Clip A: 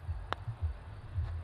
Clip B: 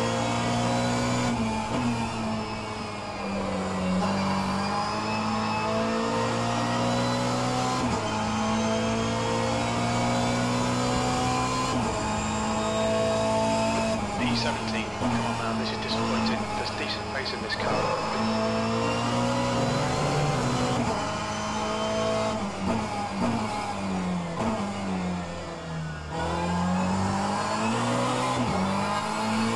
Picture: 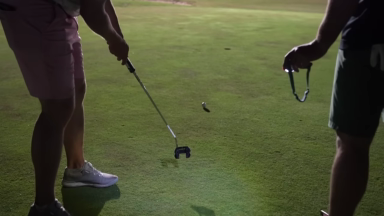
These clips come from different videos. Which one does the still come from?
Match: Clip A